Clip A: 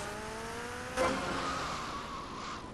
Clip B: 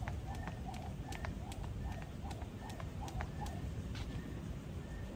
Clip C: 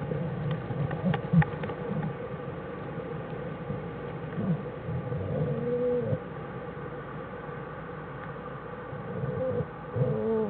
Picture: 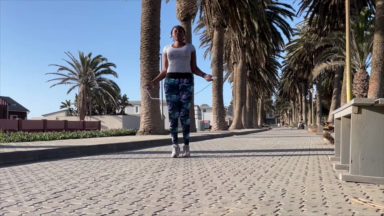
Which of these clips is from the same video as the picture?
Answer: B